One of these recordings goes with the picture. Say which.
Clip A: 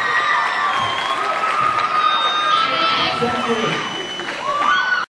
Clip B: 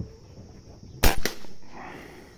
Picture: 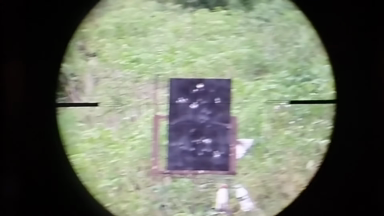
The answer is B